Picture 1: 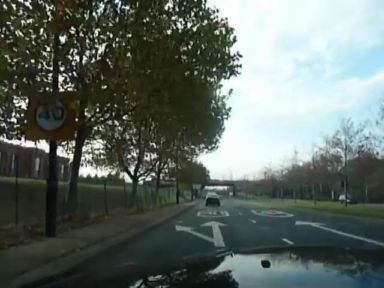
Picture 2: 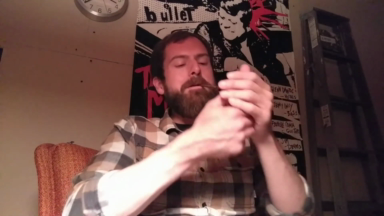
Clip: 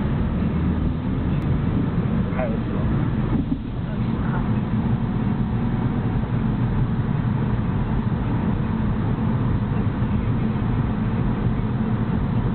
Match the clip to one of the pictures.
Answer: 1